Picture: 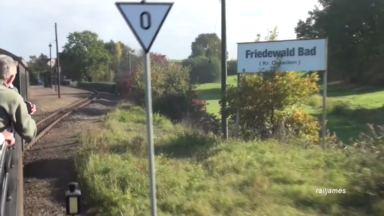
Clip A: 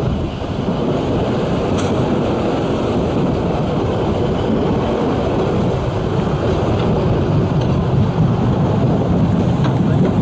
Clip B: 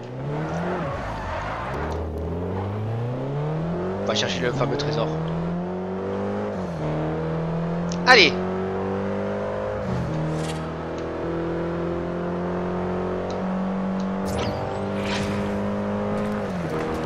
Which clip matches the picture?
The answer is A